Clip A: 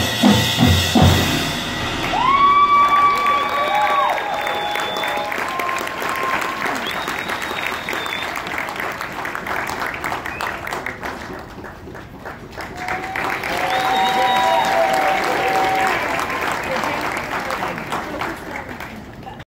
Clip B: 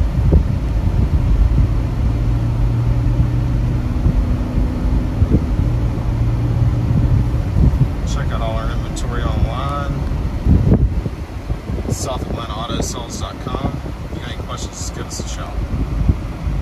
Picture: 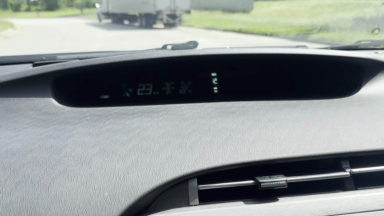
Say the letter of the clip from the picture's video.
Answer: B